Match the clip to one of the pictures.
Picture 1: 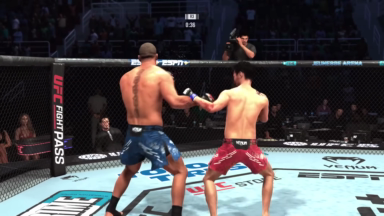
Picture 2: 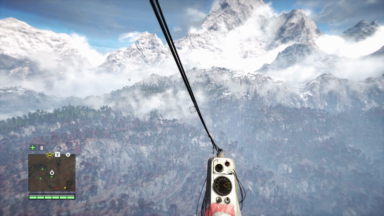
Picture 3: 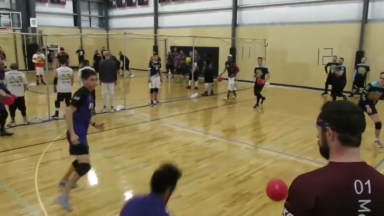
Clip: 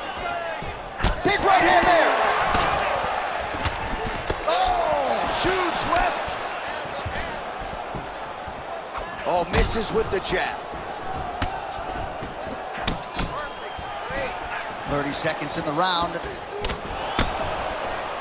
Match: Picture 1